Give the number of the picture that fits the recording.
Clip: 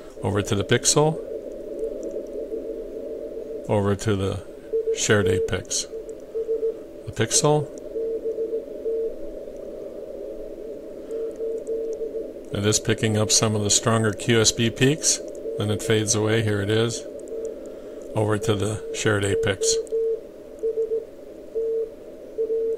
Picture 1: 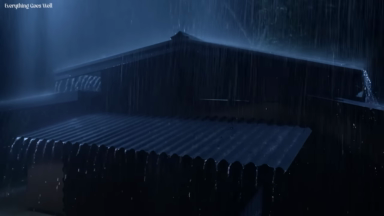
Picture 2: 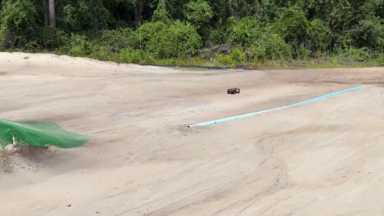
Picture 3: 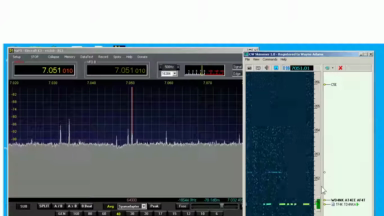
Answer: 3